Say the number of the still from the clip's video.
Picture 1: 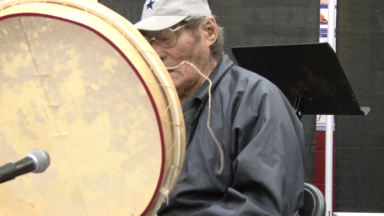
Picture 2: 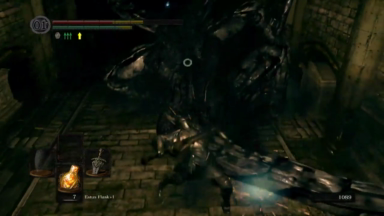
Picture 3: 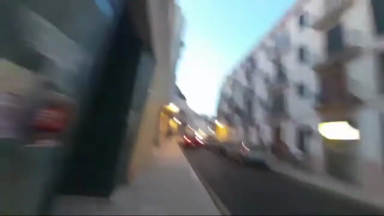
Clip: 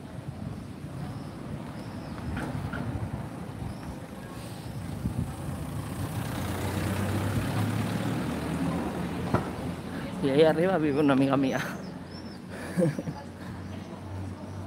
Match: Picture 3